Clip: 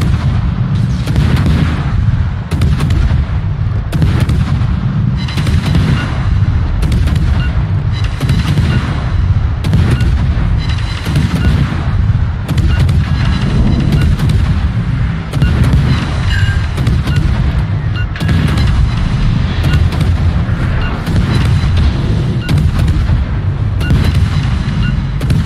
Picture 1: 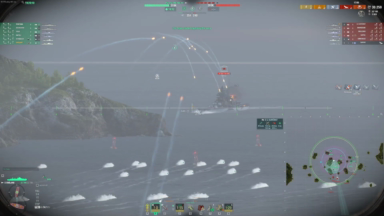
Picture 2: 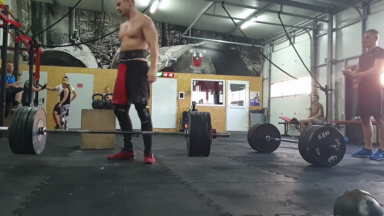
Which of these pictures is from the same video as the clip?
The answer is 1